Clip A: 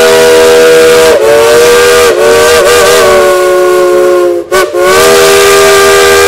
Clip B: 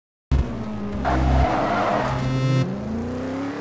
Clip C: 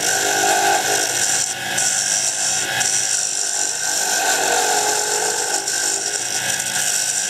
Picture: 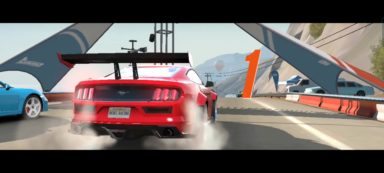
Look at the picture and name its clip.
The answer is B